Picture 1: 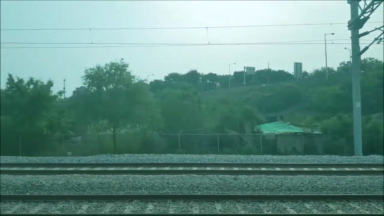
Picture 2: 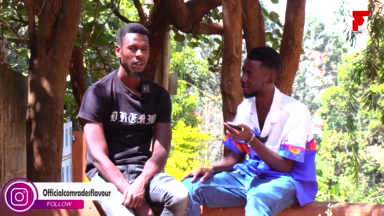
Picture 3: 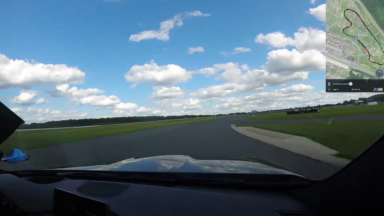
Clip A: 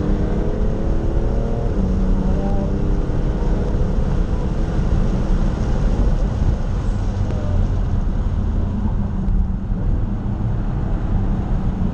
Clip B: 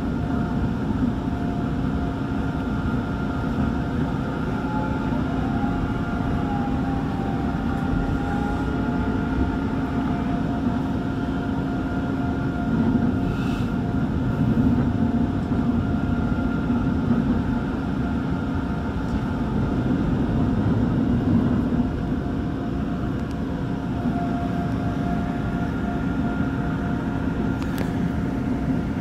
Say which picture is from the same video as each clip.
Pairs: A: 3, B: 1